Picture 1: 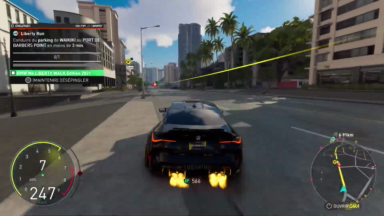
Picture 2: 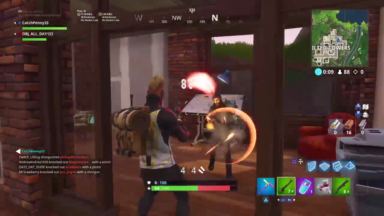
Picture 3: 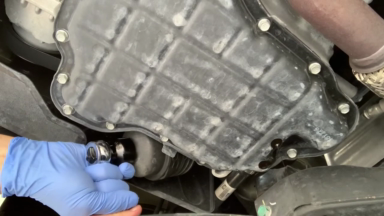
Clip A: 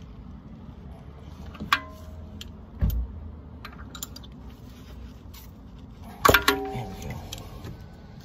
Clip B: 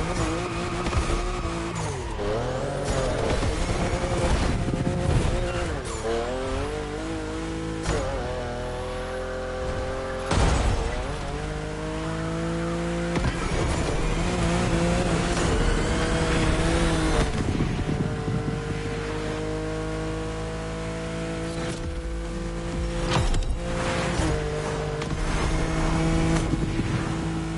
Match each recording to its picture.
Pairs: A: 3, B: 1